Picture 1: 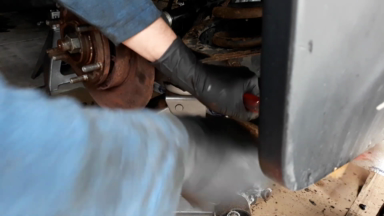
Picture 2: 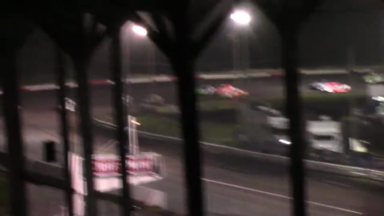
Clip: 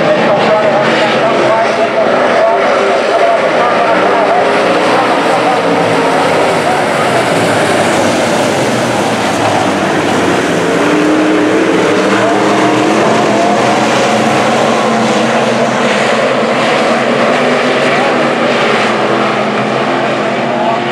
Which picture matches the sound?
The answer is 2